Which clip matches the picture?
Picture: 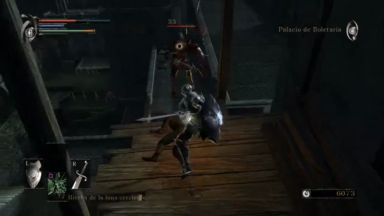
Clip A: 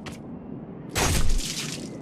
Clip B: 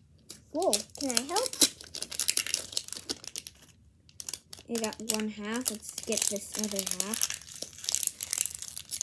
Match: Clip A